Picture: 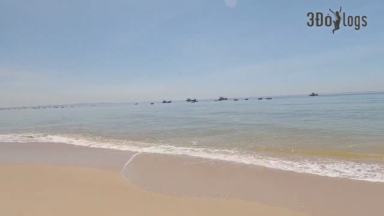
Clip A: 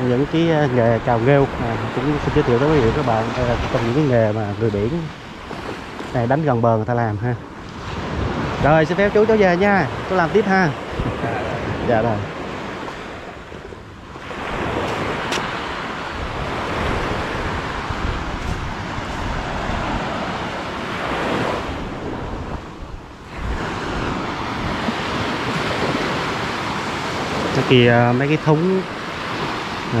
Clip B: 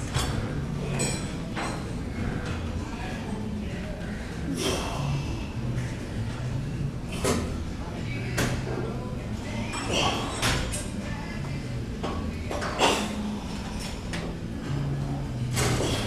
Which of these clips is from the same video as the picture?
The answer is A